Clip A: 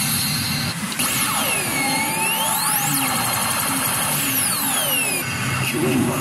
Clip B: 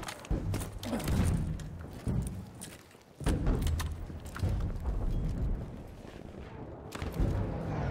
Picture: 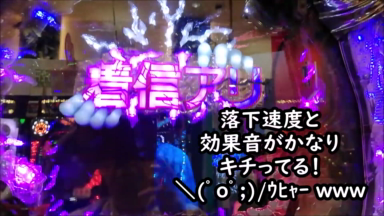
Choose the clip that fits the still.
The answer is A